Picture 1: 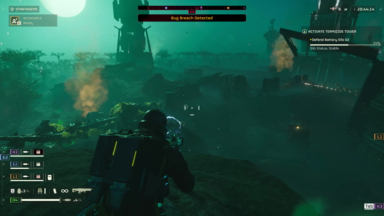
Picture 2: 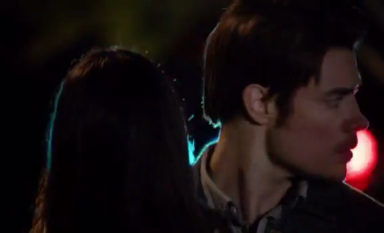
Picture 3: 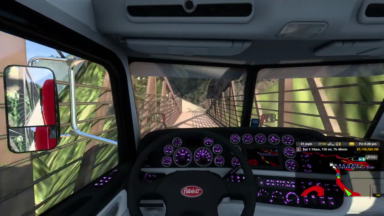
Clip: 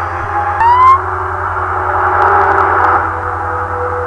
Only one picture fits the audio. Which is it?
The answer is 2